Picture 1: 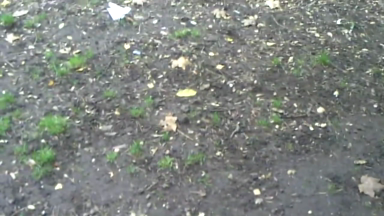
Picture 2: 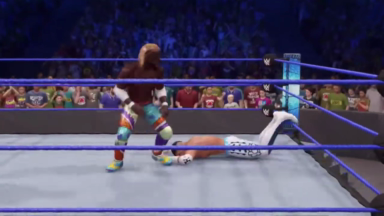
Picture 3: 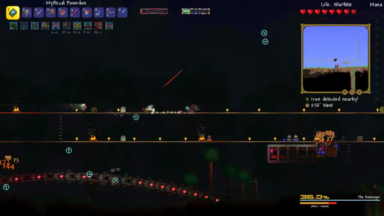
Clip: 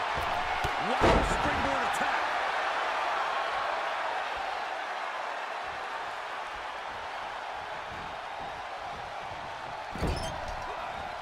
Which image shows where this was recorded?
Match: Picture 2